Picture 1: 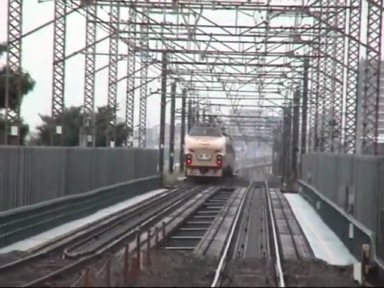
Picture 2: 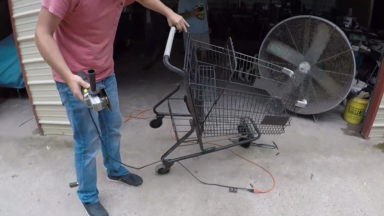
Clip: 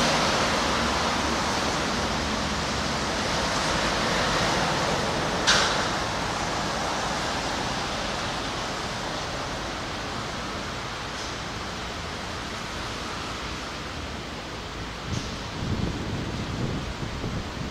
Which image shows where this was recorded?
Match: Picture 1